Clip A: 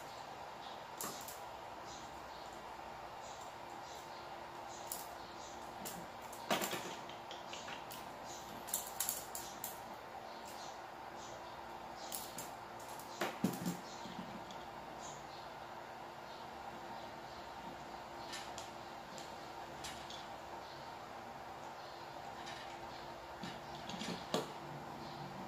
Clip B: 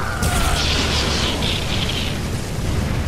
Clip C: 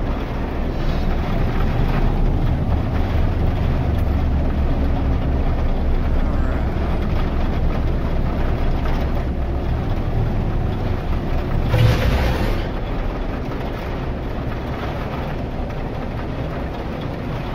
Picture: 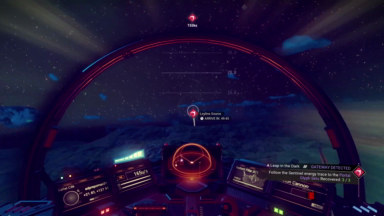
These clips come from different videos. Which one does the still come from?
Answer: C